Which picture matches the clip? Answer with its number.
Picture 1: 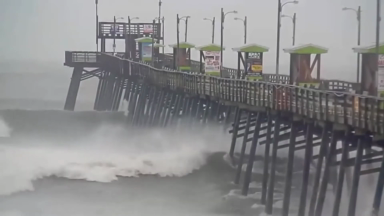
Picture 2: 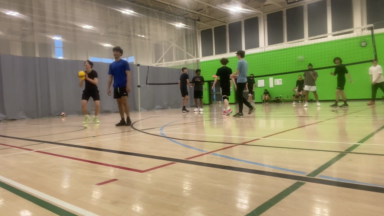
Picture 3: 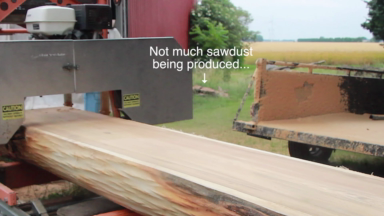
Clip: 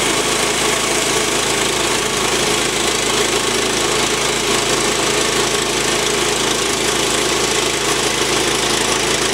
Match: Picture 3